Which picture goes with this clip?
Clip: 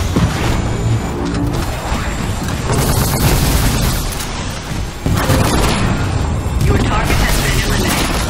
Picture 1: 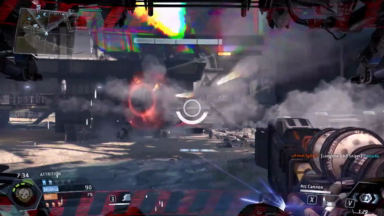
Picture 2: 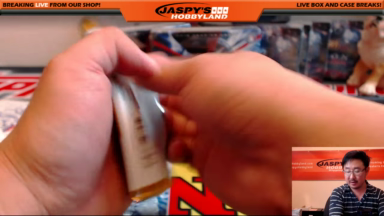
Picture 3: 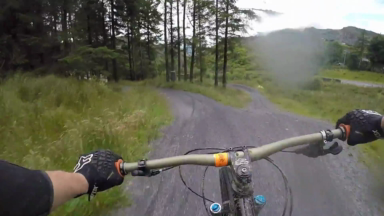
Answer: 1